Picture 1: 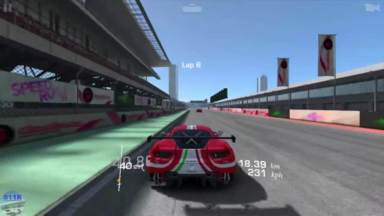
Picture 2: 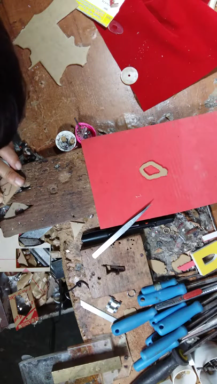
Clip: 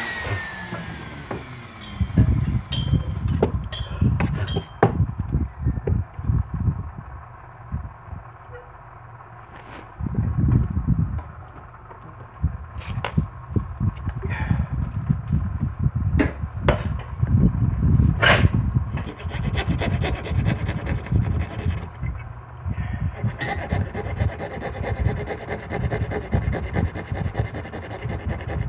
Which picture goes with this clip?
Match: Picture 2